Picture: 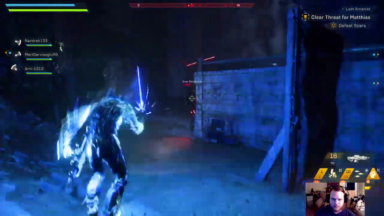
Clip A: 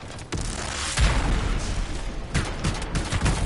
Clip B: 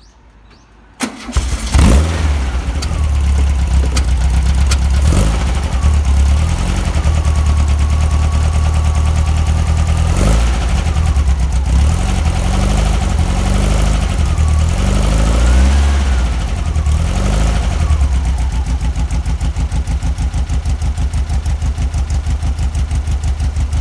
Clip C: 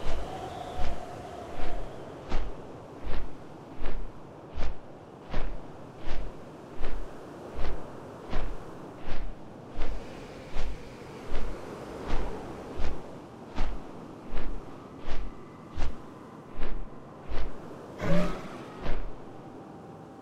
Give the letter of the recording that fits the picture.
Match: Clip A